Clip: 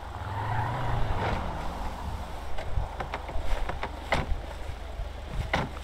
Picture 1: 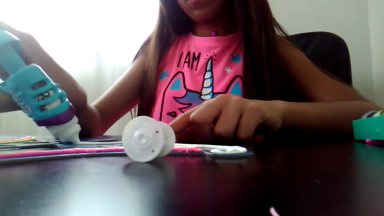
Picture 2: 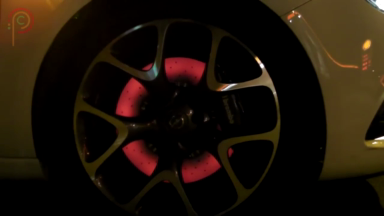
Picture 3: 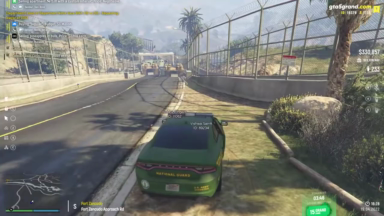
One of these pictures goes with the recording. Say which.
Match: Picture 3